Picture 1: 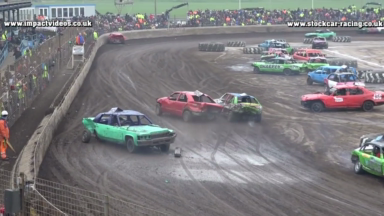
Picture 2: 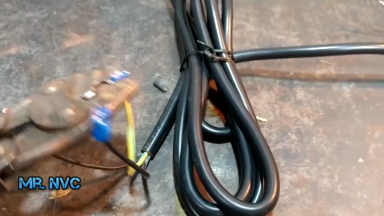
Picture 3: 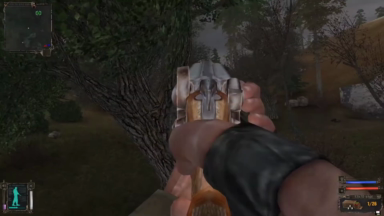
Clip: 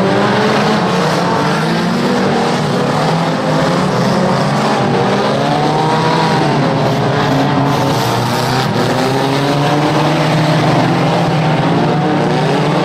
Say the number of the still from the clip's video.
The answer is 1